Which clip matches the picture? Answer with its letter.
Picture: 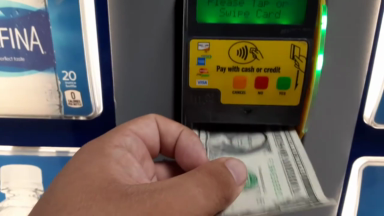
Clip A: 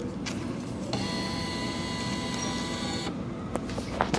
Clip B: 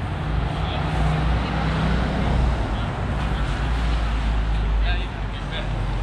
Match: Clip A